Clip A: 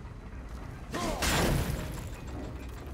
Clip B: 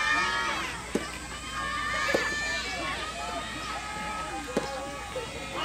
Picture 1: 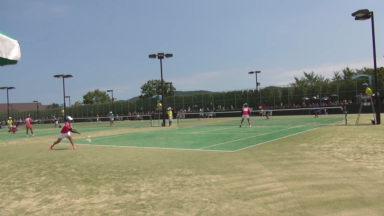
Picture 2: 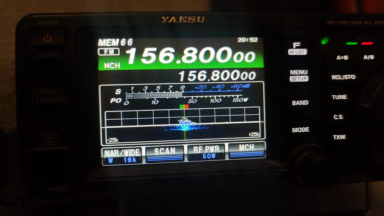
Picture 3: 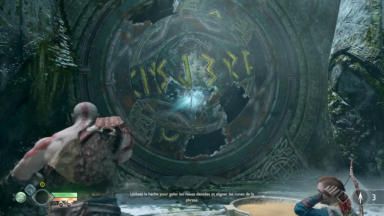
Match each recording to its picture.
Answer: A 3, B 1